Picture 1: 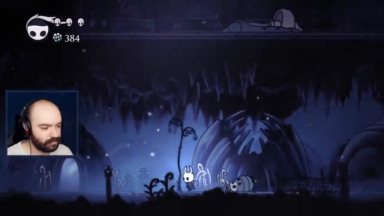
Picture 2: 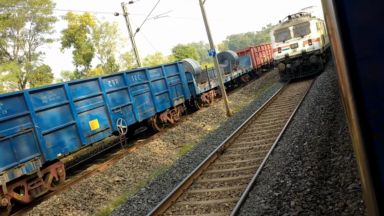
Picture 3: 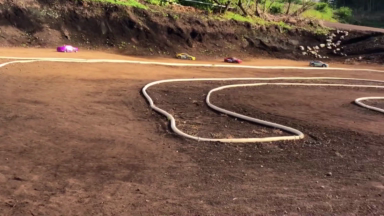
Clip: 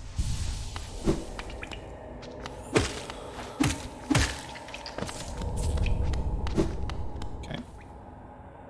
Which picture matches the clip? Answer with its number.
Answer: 1